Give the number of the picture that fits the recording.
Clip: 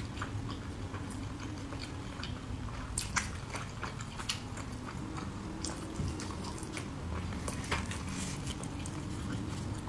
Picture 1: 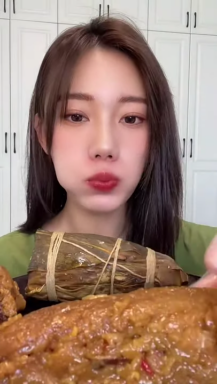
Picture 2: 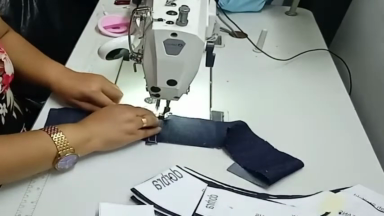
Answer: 1